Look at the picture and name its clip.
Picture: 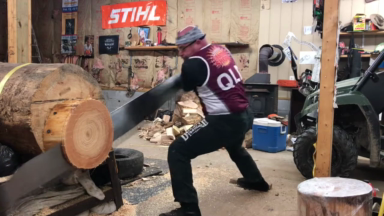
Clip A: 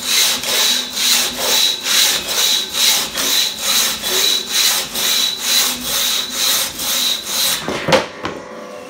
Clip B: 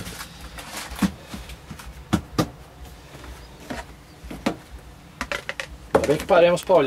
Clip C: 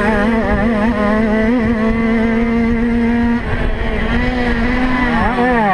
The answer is A